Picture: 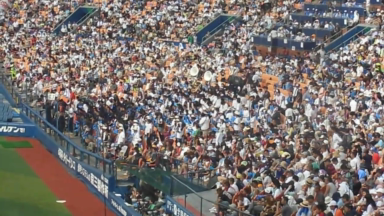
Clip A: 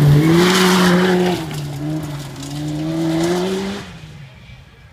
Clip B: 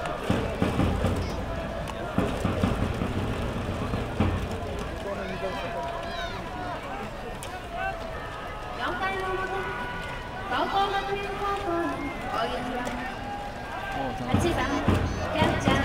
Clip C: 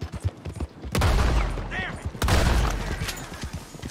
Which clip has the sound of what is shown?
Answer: B